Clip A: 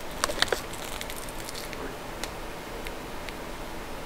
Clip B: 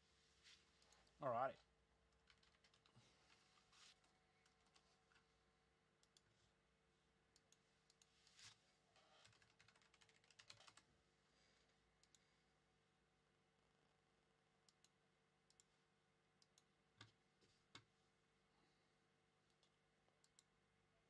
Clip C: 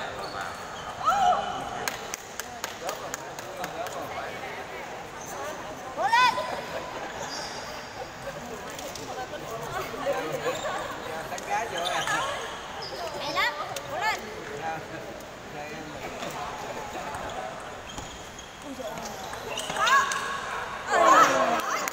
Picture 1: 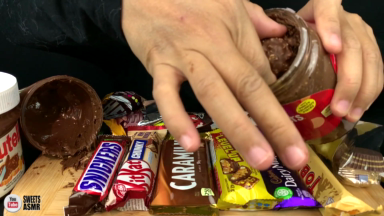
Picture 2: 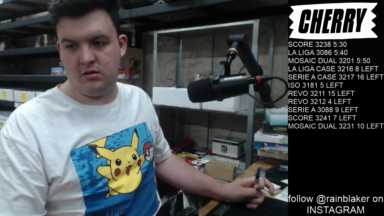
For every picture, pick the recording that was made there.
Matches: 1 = A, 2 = B